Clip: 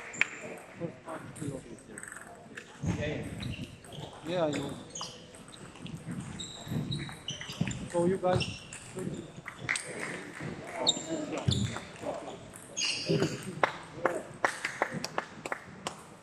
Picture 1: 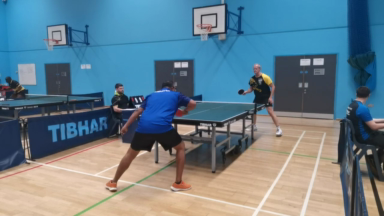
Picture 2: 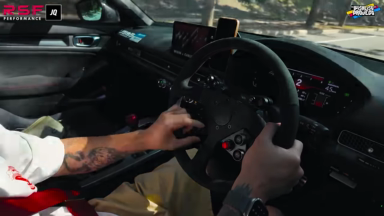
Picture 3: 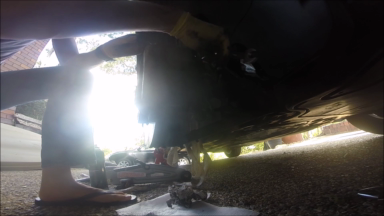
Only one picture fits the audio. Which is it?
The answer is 1